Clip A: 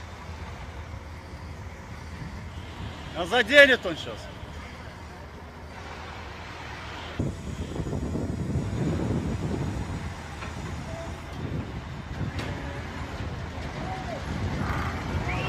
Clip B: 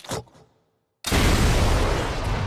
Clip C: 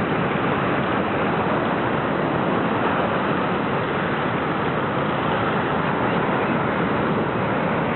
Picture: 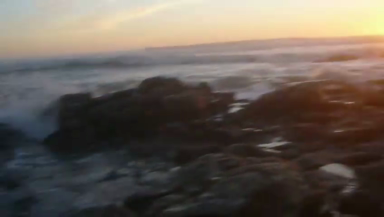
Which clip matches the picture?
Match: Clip C